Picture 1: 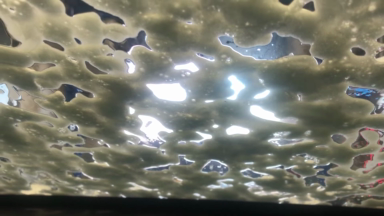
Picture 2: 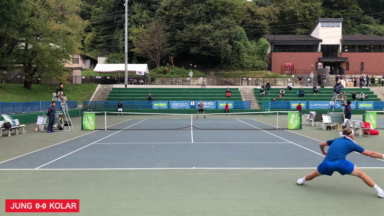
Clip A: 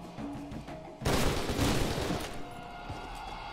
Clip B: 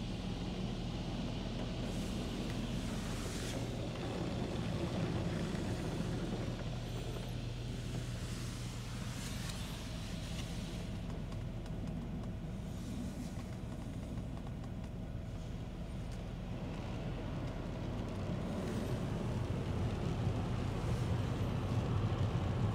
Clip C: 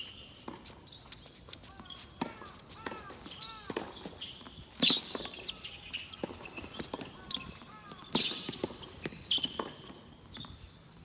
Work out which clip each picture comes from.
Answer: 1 B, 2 C